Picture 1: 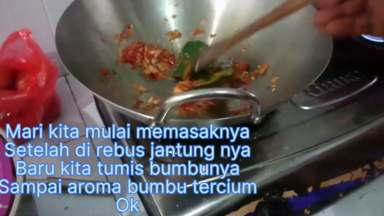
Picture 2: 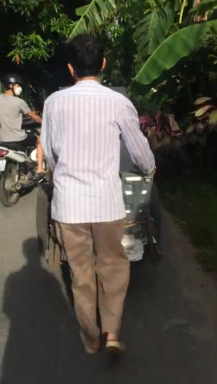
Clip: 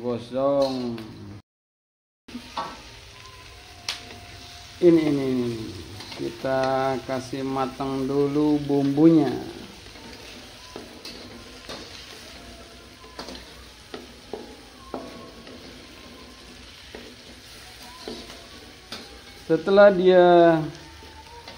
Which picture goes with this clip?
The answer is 1